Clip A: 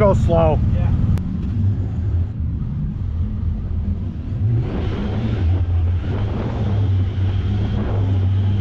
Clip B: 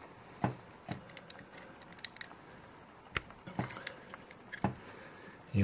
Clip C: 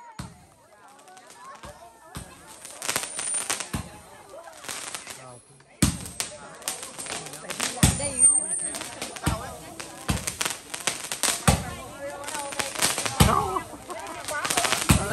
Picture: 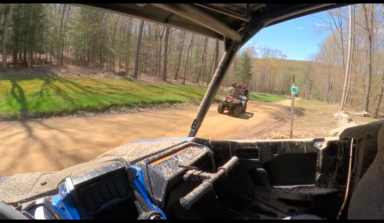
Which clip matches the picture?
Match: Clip A